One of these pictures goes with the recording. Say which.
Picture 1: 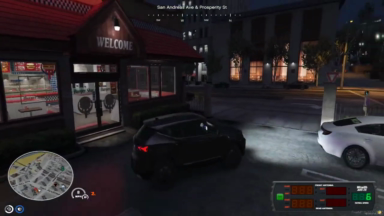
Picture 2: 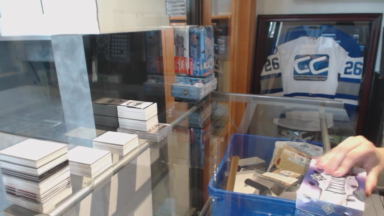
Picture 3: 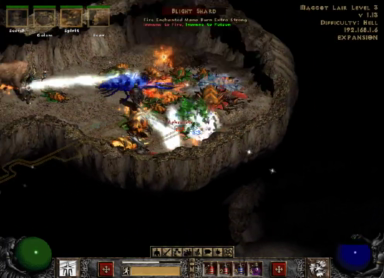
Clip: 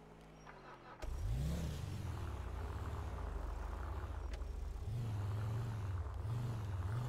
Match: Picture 1